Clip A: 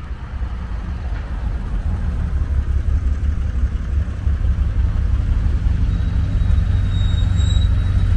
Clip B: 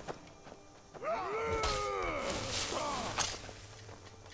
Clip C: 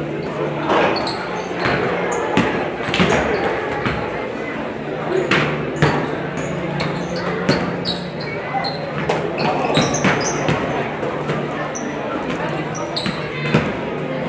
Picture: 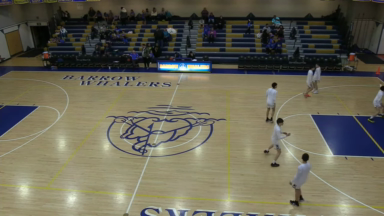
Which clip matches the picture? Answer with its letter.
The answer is C